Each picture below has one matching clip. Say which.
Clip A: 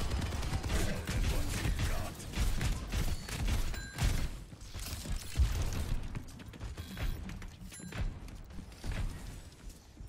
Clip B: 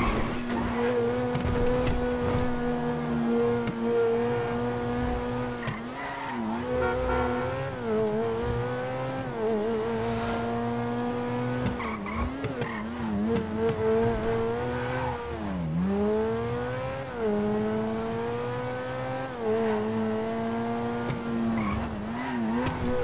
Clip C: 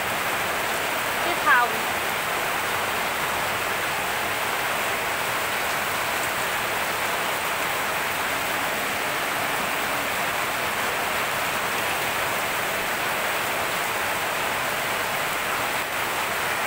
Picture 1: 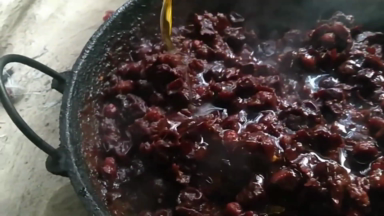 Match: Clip C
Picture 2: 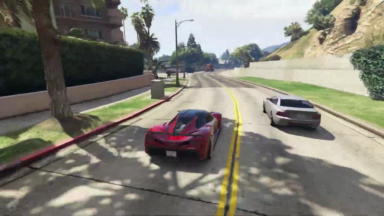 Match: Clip B